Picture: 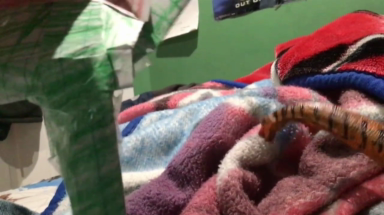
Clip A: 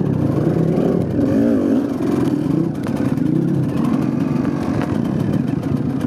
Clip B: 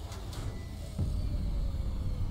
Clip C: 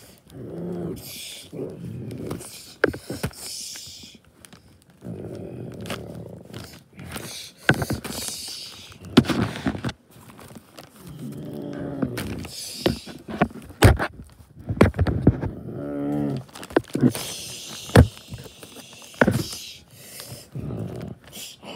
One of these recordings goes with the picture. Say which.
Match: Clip C